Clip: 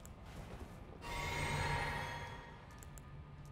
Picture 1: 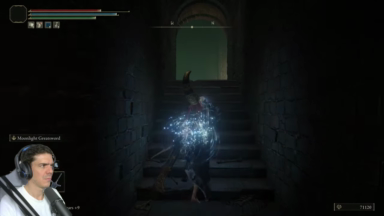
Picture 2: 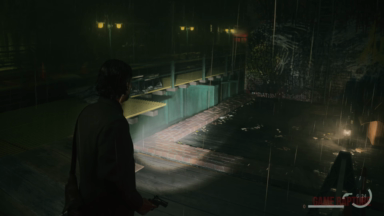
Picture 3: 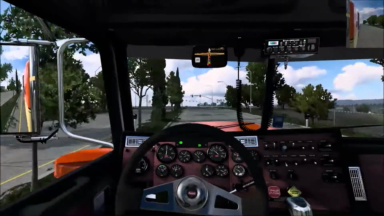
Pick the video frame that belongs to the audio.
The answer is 1